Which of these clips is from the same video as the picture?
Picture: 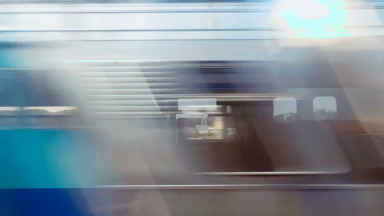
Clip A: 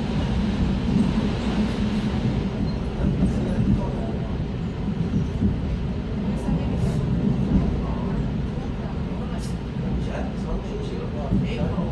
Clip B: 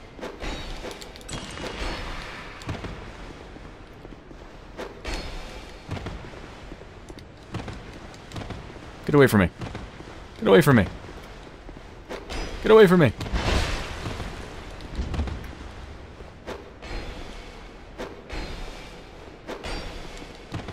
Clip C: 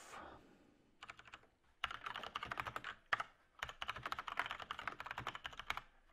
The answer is A